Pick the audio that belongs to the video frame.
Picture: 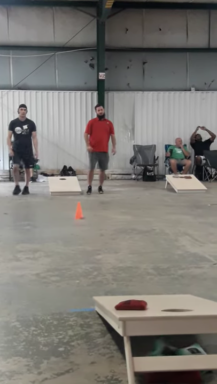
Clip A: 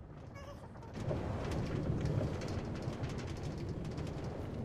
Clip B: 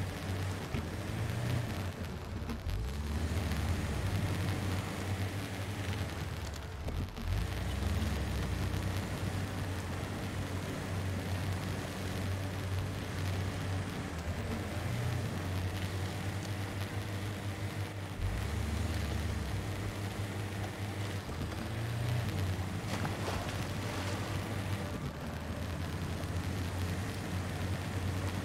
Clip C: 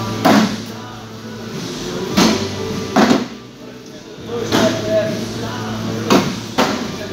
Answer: C